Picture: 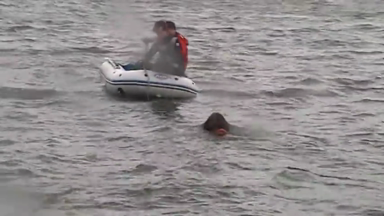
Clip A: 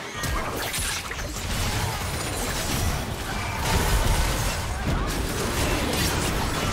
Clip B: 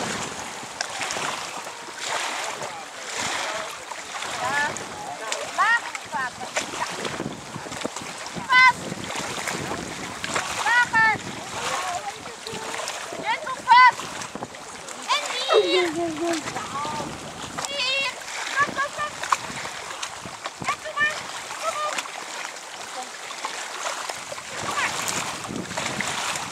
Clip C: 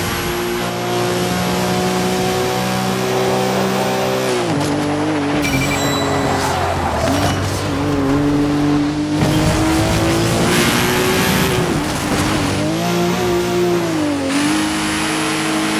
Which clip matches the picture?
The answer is B